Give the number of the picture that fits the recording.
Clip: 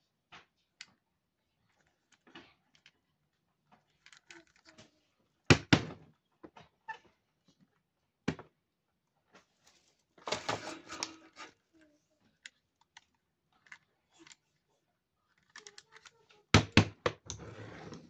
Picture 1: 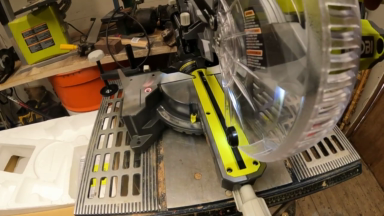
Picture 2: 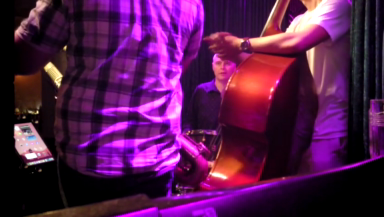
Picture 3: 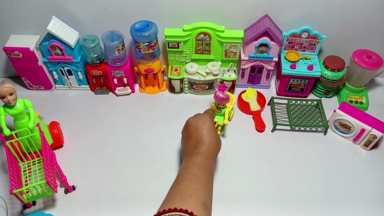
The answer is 3